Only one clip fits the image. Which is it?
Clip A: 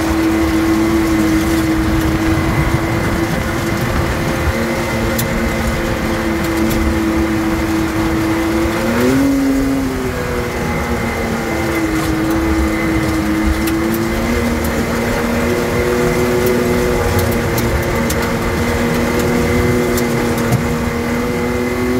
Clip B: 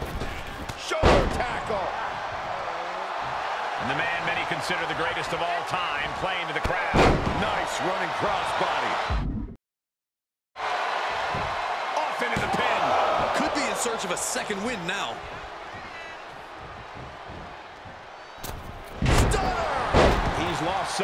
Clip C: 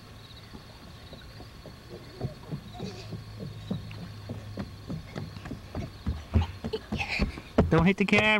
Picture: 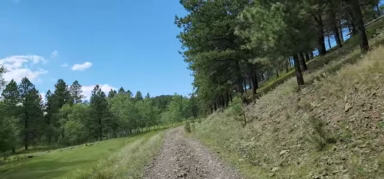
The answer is A